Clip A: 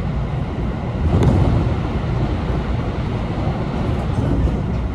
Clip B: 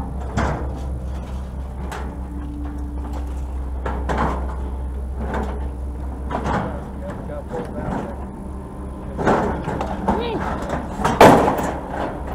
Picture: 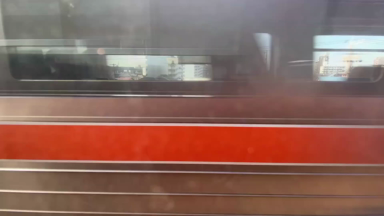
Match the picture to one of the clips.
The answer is A